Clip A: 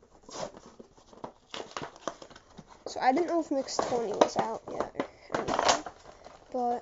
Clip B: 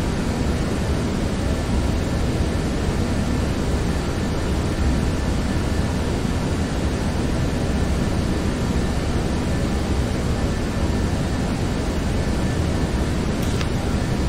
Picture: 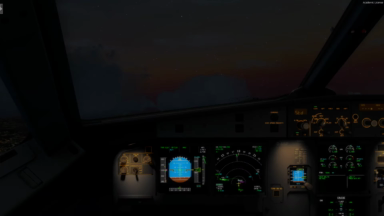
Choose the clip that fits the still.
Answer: B